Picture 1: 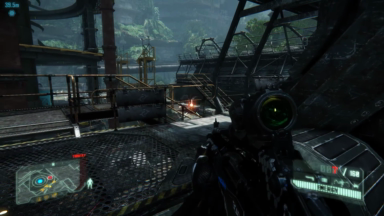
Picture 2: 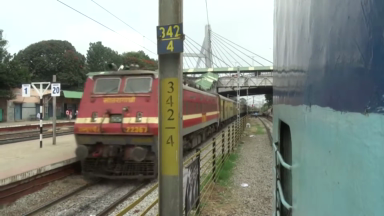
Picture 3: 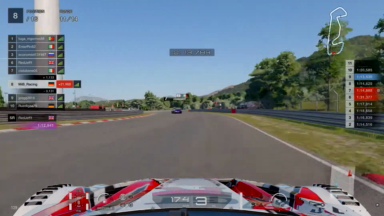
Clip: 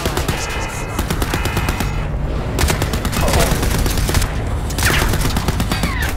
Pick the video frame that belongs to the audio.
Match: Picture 1